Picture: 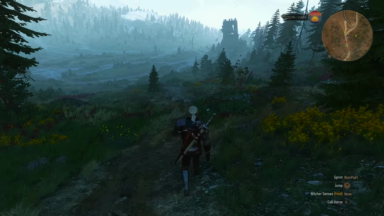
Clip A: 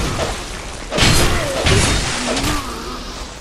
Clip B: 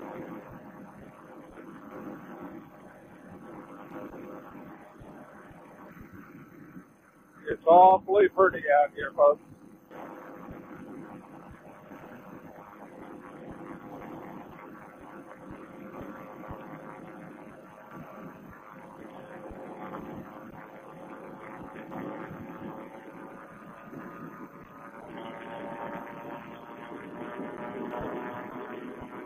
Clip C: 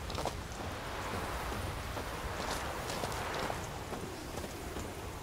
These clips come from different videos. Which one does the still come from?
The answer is C